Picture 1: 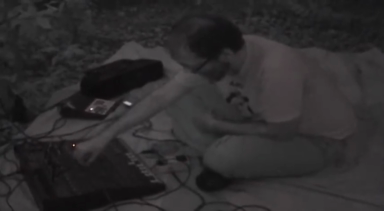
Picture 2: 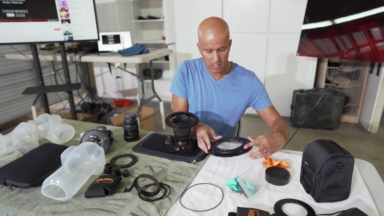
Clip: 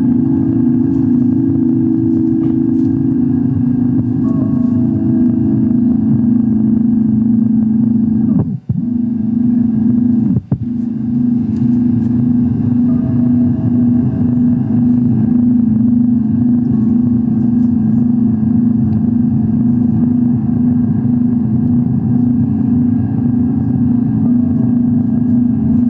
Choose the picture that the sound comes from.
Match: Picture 1